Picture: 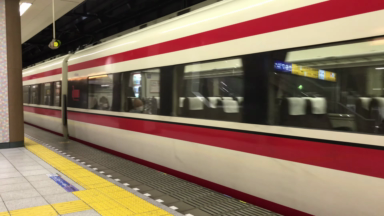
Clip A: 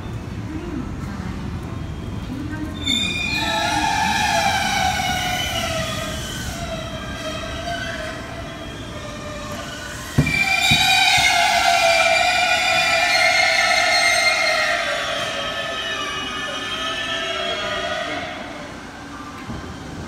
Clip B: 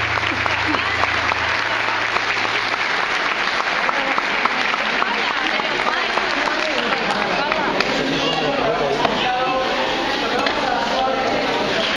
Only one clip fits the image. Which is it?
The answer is A